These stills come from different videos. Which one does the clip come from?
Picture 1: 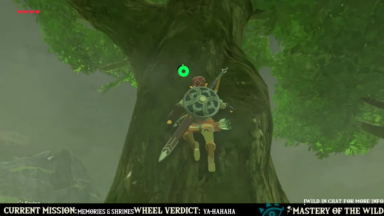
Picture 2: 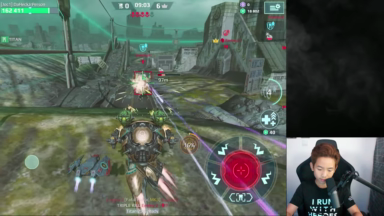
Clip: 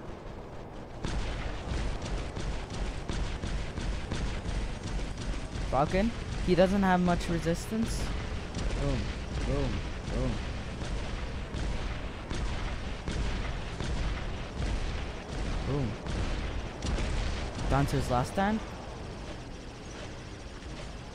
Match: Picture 2